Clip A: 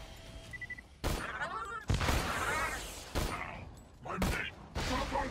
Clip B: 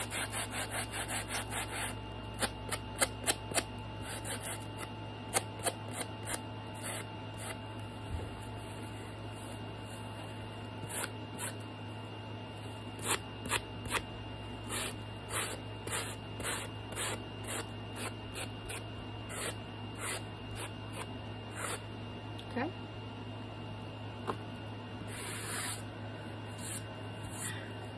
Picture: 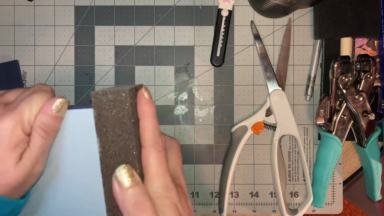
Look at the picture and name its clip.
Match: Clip B